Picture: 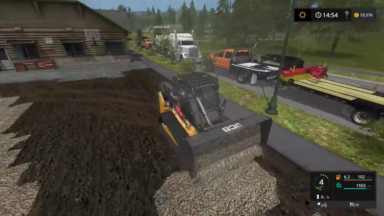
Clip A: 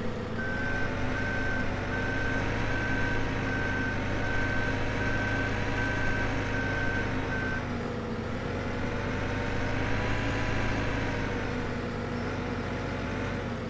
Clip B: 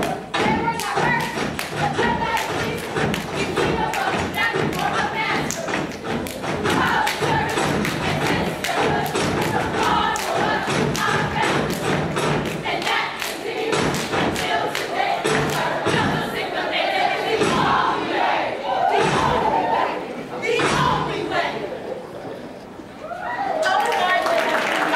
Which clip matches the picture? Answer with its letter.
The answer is A